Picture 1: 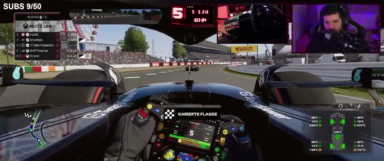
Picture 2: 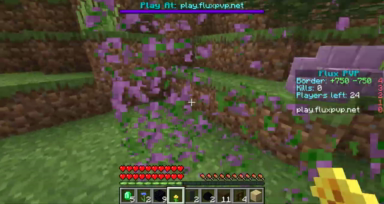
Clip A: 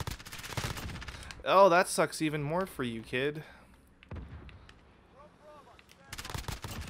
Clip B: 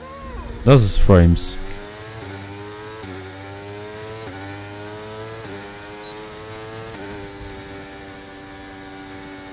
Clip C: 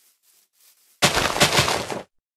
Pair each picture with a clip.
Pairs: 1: B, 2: C